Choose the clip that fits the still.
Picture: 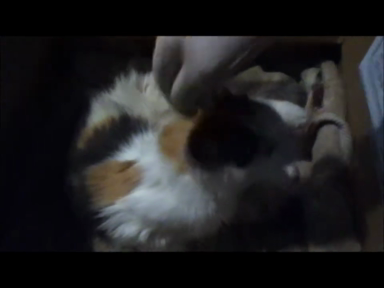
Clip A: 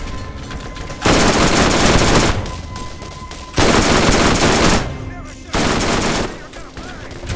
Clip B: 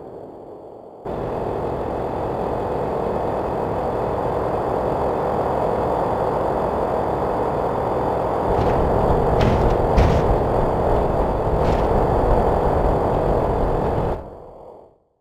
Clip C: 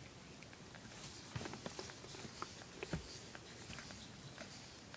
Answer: C